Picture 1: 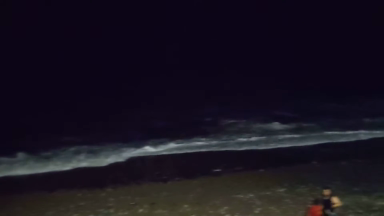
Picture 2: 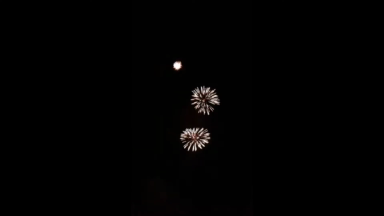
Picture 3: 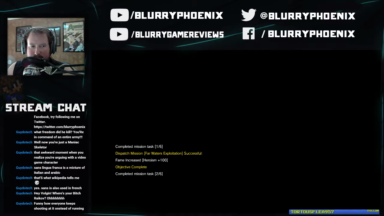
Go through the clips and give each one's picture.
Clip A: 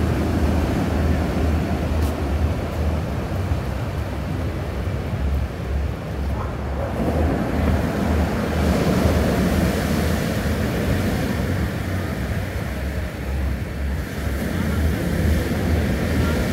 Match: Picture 1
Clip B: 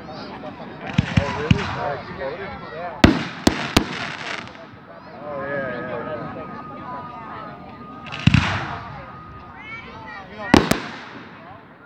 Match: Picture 2